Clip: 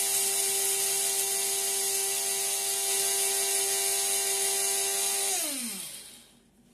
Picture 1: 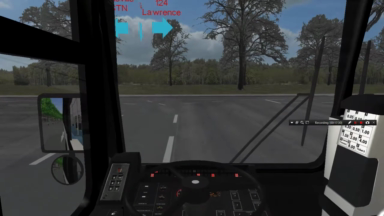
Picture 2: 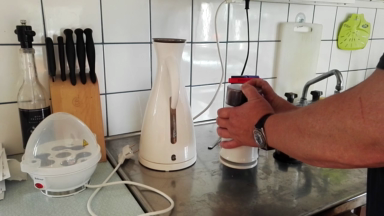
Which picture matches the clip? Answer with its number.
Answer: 2